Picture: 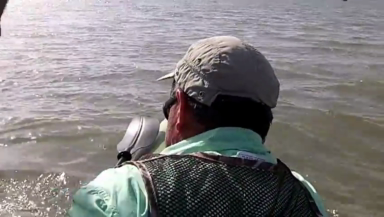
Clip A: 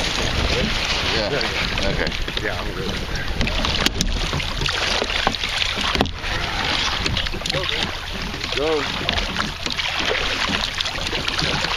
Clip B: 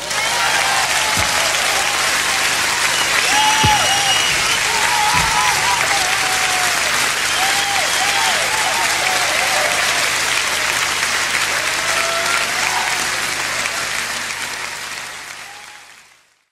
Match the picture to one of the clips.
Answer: A